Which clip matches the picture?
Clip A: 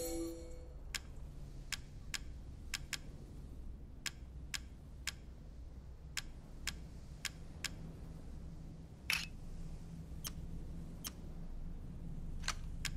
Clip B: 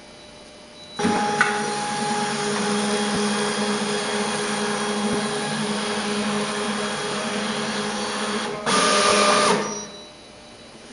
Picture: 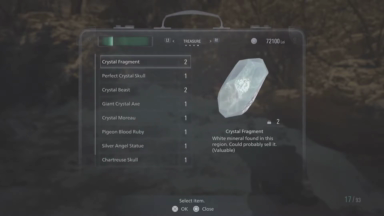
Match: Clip A